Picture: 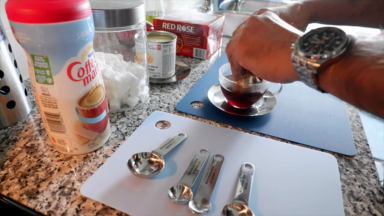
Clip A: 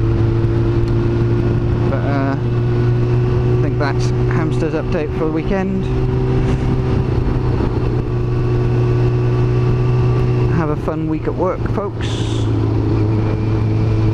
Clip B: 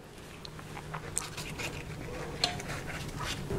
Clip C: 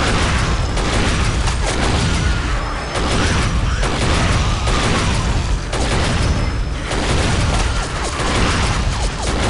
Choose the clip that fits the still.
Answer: B